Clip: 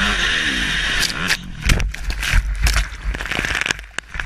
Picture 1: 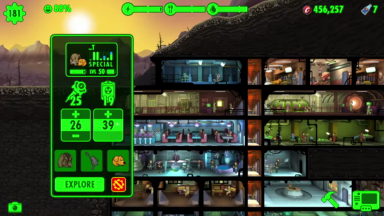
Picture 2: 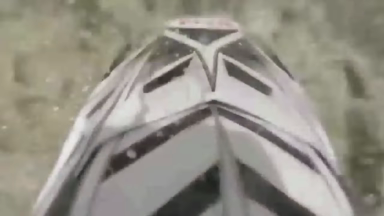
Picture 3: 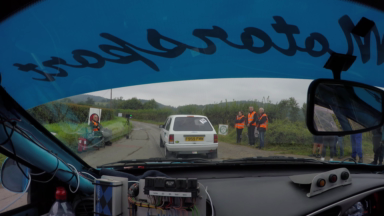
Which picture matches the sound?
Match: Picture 2